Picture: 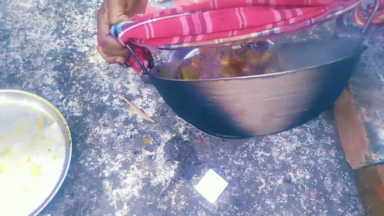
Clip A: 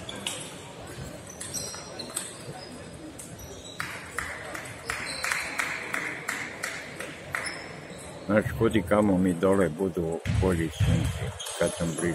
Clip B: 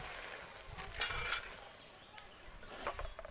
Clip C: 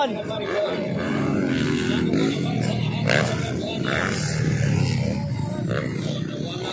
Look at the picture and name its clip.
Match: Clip B